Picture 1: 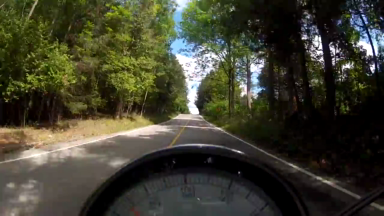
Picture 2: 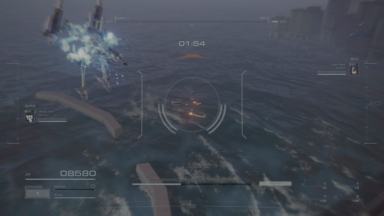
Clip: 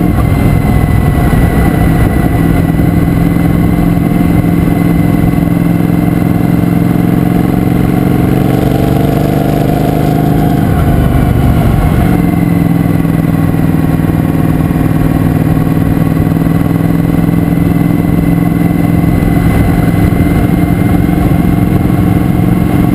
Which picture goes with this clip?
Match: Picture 1